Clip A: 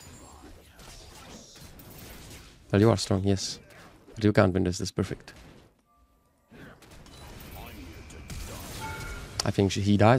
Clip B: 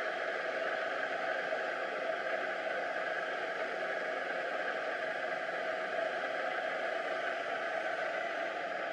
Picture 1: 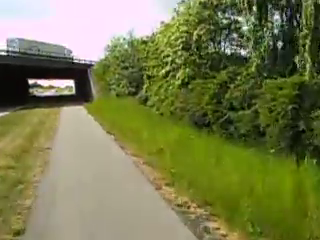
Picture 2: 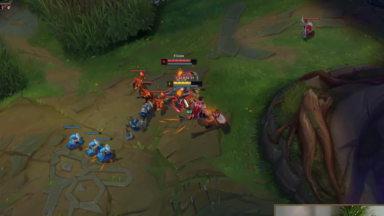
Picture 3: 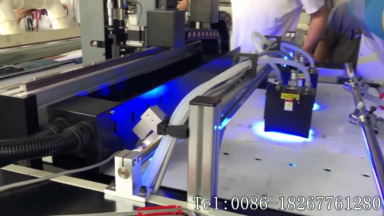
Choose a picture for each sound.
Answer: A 2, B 3